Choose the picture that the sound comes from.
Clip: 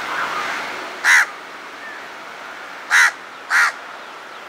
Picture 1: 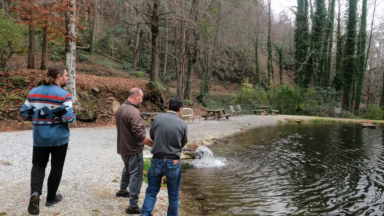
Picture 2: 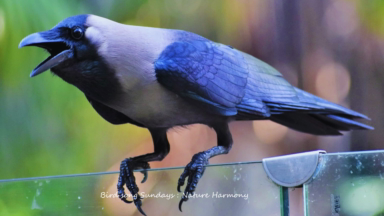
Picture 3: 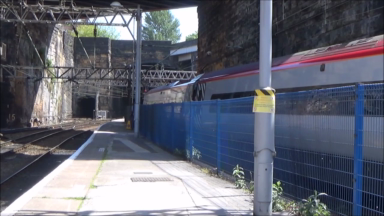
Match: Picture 2